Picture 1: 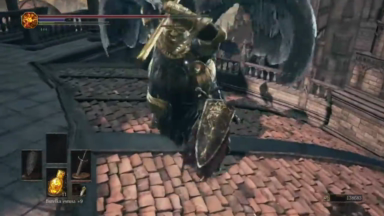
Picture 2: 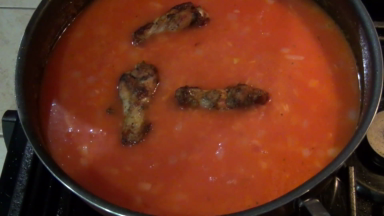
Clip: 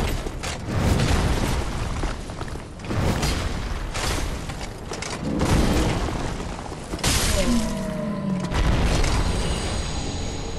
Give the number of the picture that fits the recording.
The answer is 1